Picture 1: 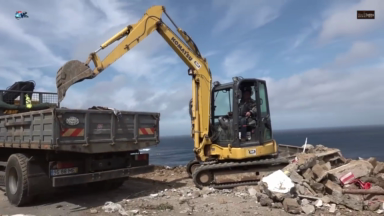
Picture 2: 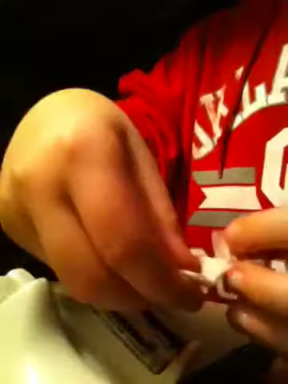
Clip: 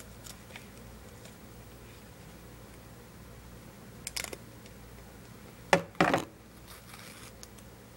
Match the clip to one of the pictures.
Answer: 2